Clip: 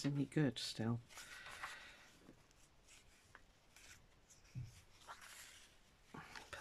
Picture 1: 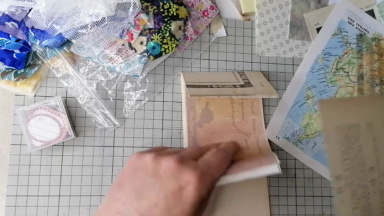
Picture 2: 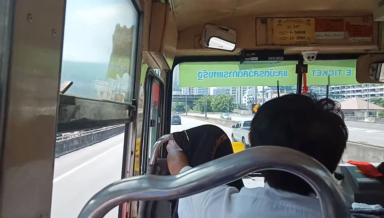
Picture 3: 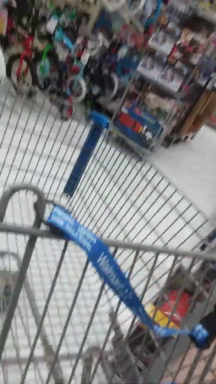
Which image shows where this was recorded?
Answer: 1